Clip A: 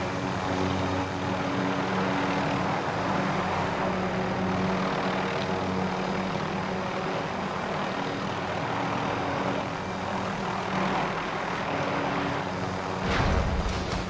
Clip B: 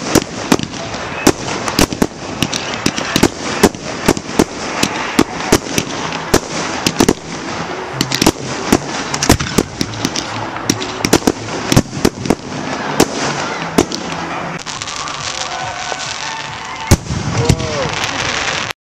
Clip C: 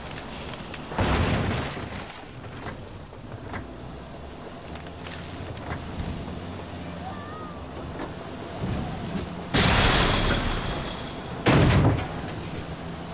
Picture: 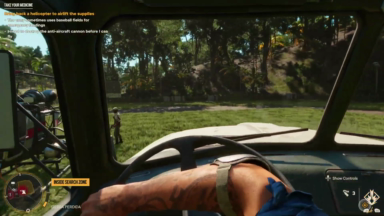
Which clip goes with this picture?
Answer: C